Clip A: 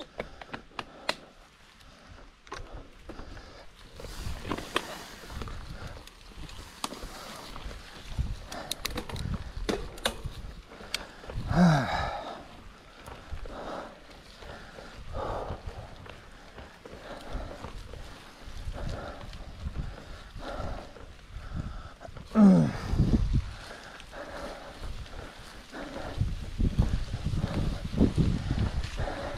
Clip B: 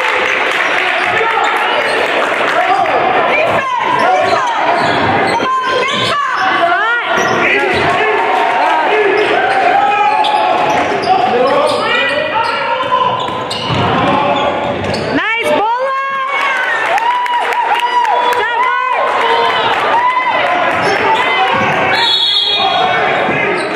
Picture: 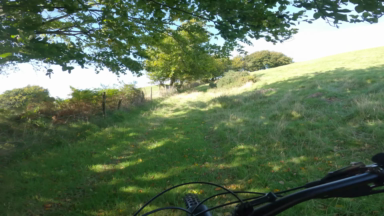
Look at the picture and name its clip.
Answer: A